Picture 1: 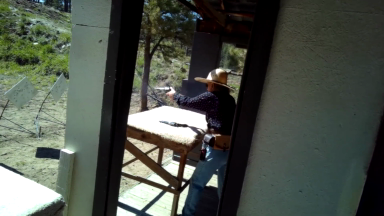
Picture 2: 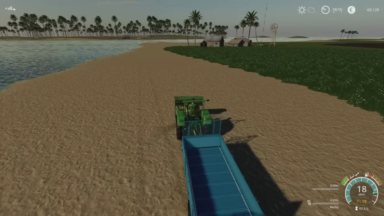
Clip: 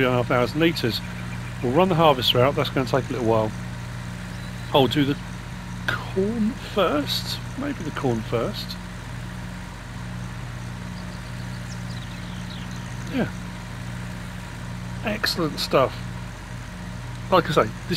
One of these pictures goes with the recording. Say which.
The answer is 2